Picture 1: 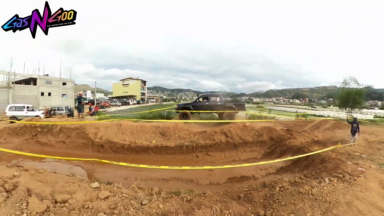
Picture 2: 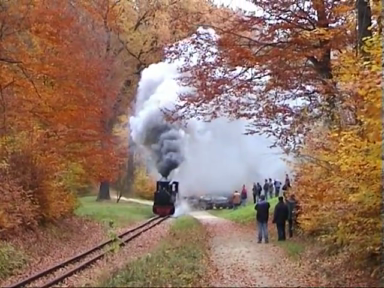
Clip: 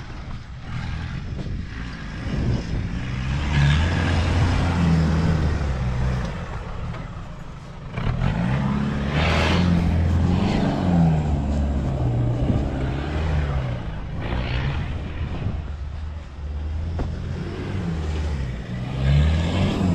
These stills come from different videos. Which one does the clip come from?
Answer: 1